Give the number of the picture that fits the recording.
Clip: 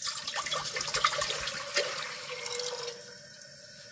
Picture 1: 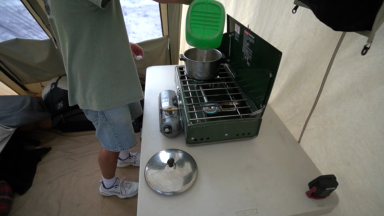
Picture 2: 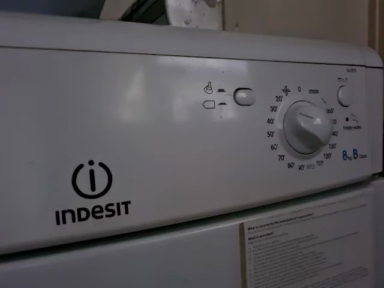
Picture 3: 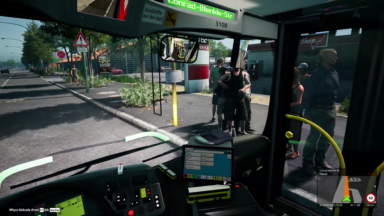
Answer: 1